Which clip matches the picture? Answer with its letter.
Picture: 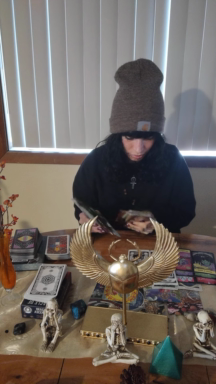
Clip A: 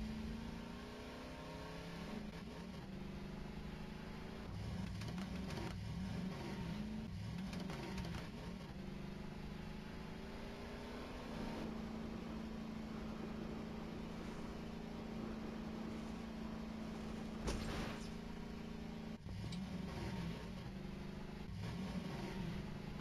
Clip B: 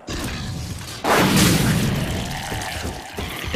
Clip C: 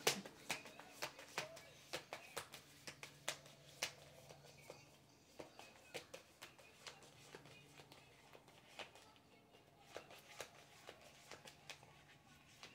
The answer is C